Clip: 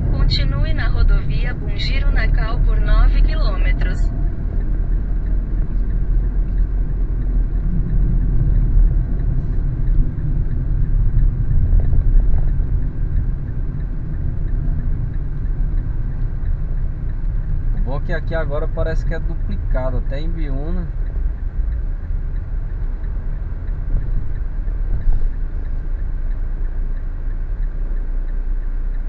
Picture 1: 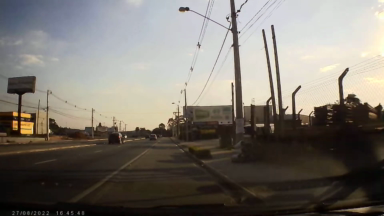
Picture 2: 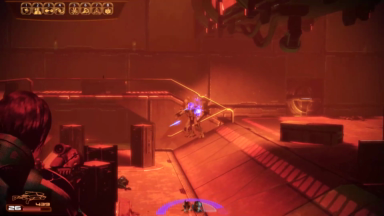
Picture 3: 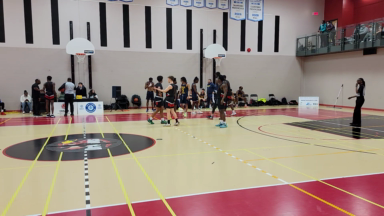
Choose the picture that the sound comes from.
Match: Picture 1